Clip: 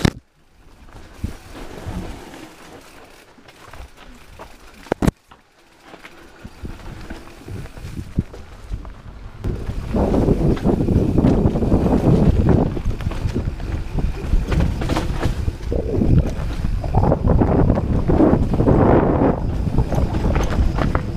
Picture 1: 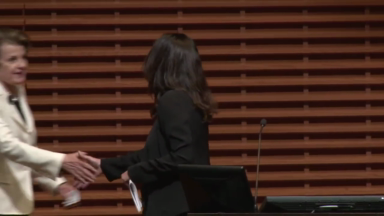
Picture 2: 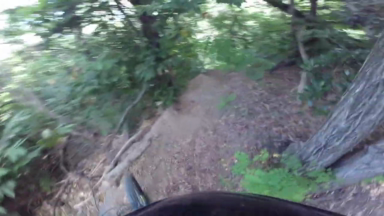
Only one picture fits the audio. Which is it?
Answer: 2